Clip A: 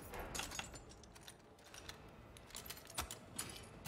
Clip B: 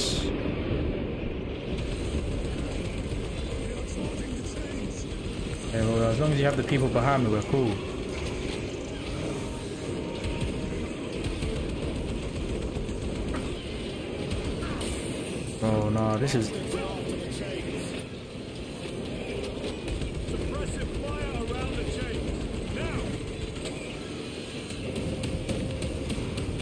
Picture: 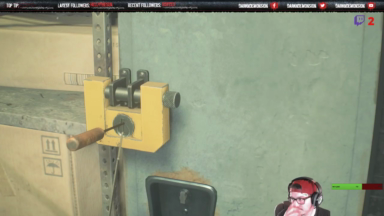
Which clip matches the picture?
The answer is A